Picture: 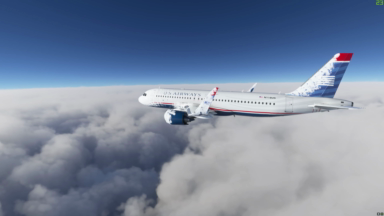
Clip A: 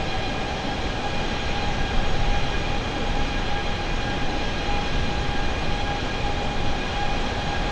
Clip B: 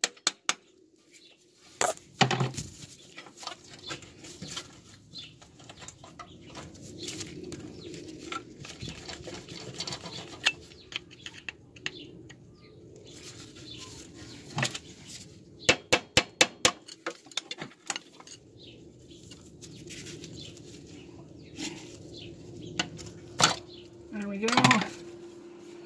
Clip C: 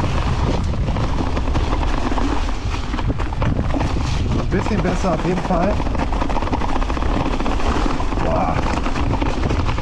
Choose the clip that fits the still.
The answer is A